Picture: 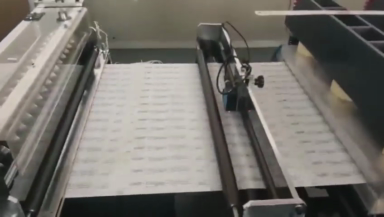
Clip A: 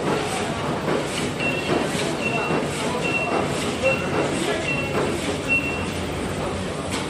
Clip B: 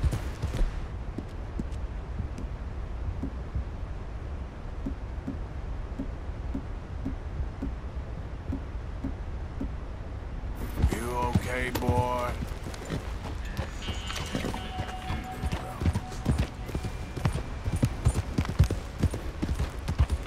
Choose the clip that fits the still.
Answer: A